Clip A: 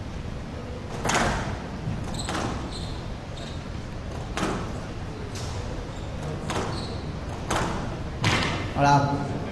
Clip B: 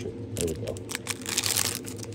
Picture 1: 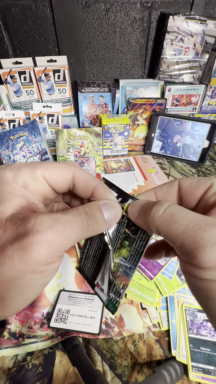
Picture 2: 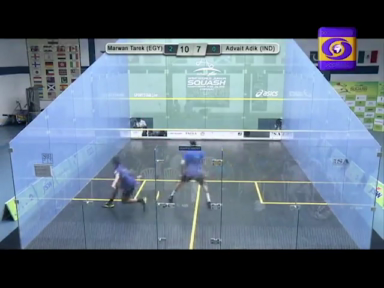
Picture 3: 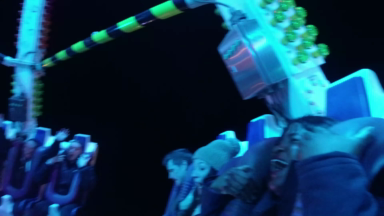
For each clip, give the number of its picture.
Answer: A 2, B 1